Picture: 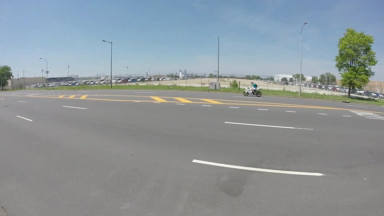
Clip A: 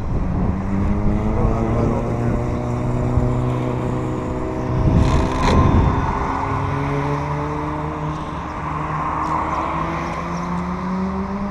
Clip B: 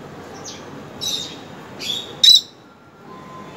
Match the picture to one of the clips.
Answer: A